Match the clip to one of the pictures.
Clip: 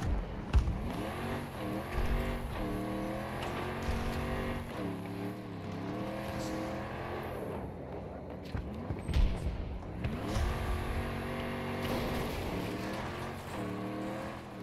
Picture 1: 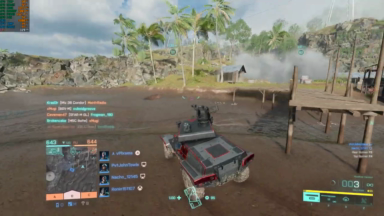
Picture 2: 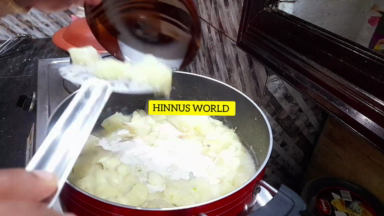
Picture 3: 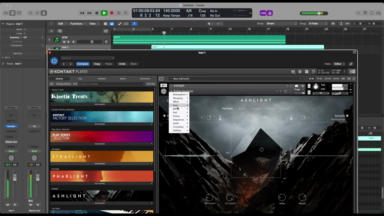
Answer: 1